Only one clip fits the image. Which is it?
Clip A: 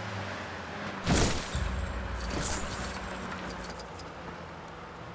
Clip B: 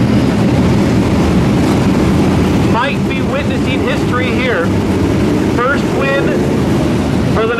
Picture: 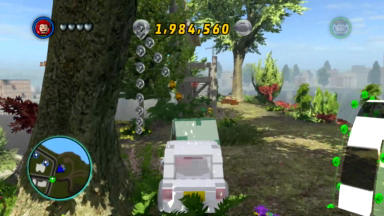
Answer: A